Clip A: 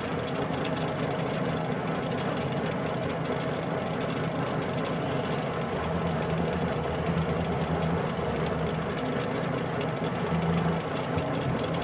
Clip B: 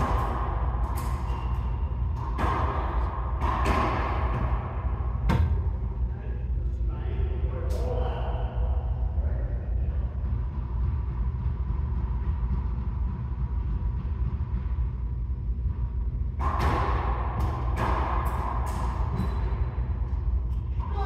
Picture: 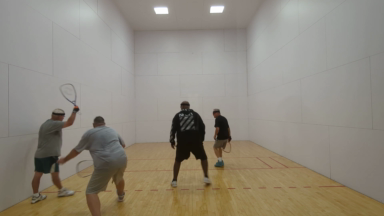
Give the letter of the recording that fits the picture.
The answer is B